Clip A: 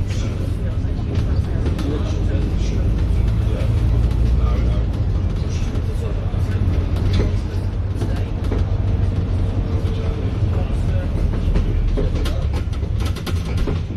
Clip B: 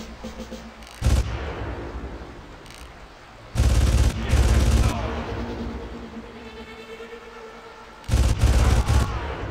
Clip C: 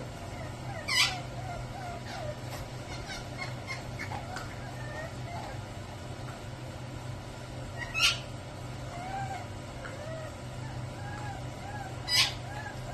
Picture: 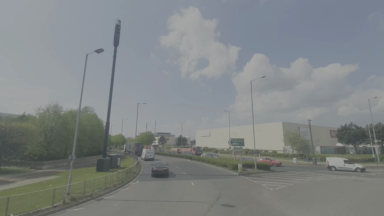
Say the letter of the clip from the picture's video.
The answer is A